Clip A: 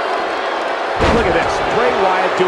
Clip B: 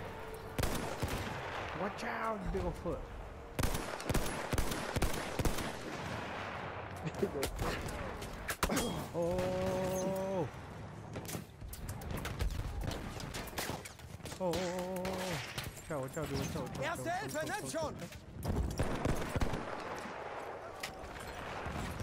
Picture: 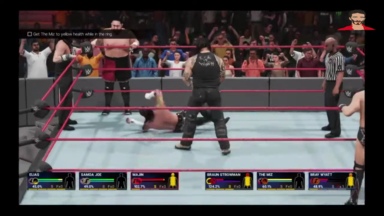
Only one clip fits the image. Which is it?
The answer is A